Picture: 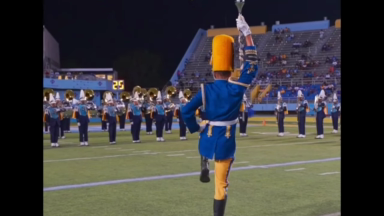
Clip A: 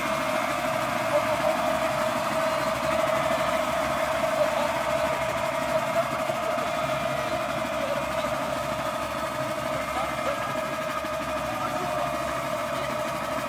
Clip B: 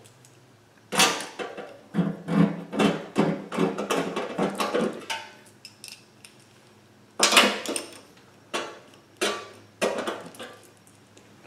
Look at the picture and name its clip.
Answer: A